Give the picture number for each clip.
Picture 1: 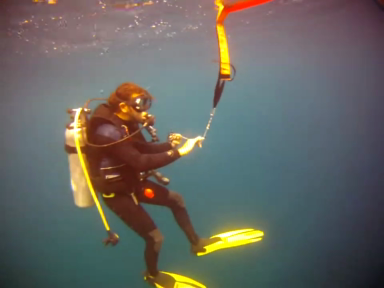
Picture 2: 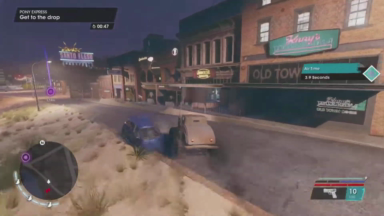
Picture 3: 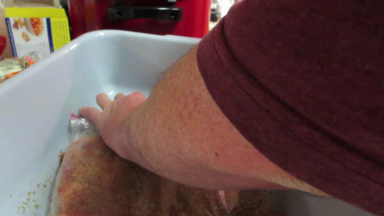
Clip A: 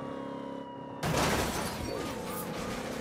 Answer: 2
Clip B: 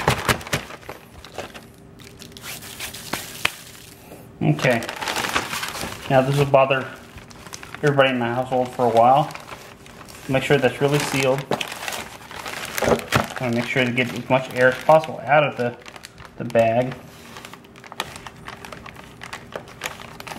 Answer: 3